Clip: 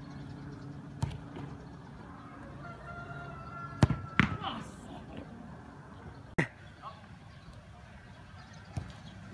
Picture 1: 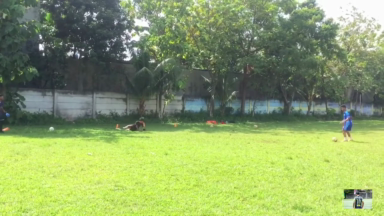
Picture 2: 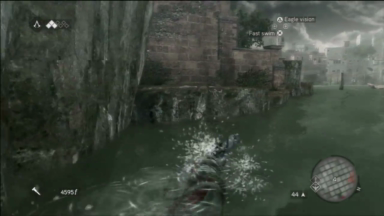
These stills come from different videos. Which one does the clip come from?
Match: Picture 1